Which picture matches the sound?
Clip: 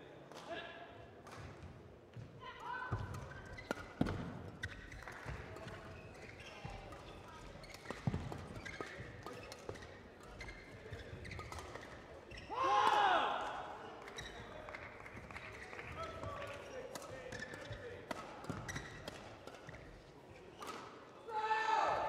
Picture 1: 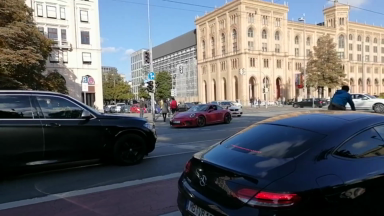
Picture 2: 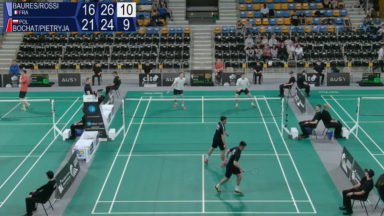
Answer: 2